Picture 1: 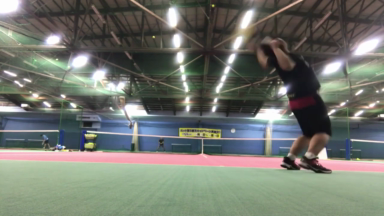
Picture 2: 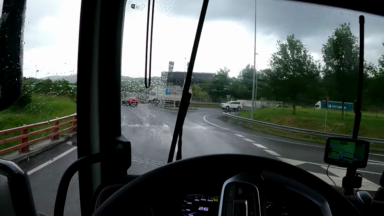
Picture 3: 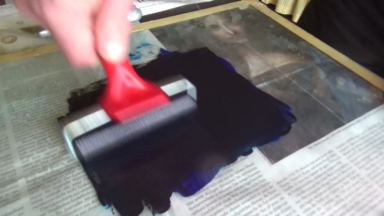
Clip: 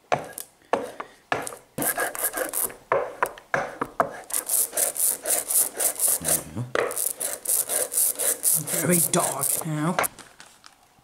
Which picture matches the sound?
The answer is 3